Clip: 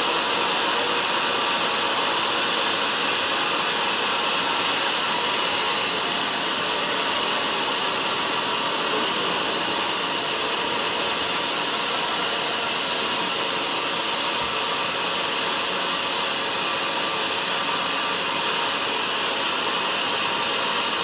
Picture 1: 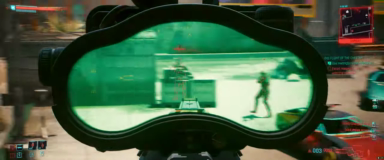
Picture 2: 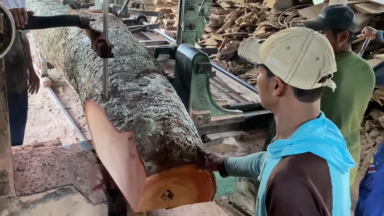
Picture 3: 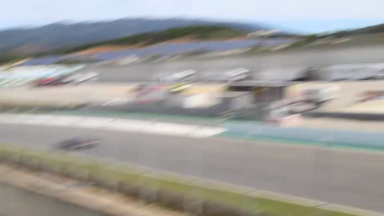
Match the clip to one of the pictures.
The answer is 2